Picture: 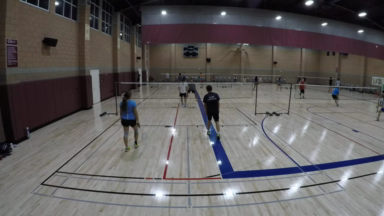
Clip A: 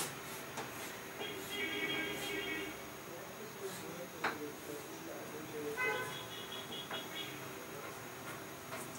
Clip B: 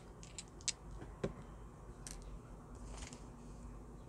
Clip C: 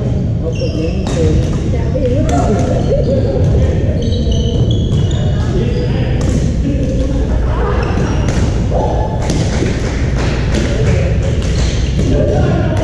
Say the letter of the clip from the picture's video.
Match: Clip C